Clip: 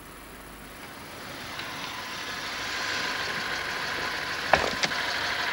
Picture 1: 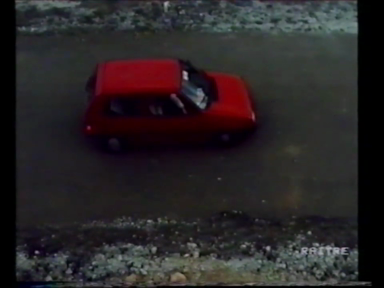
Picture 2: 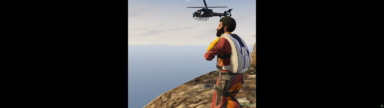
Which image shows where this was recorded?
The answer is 1